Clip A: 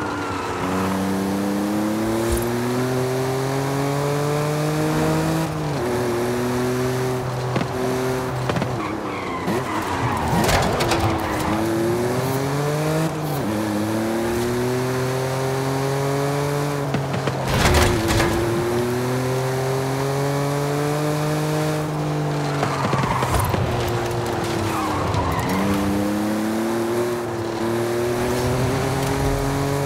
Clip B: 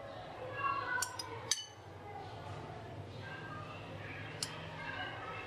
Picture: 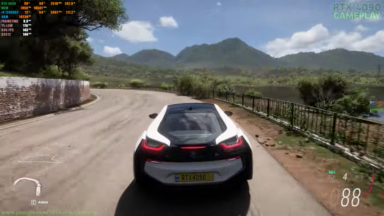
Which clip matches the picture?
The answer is A